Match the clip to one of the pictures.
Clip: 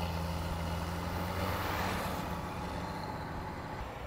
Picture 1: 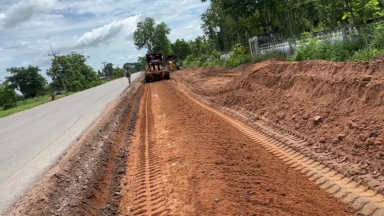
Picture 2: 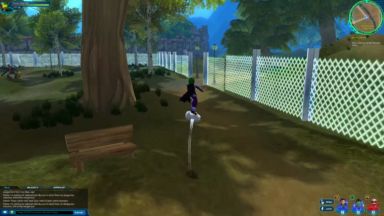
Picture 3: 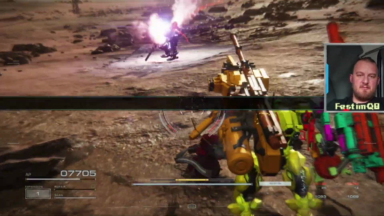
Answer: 1